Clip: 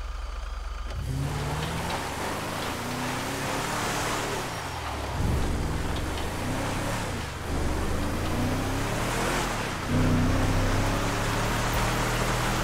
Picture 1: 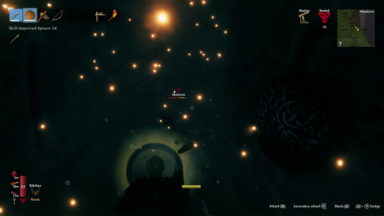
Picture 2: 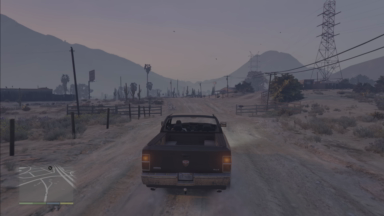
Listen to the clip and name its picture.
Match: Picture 2